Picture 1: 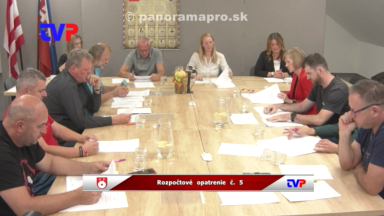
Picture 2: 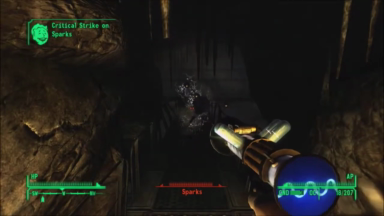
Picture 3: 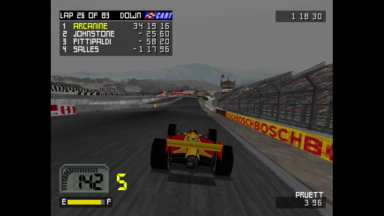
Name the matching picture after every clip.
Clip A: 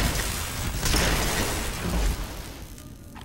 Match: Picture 2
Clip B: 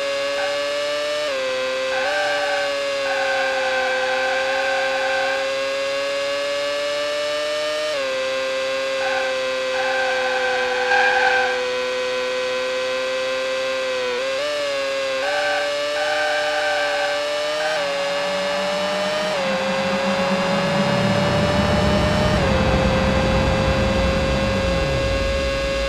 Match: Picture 3